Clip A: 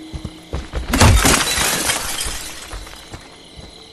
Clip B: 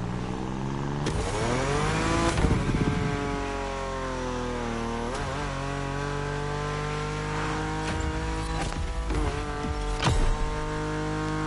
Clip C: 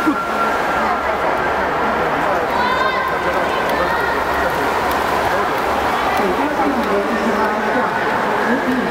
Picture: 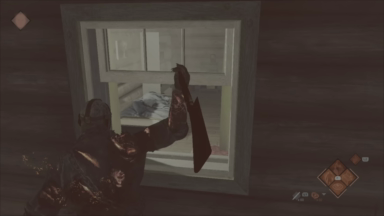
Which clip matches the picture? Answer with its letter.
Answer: A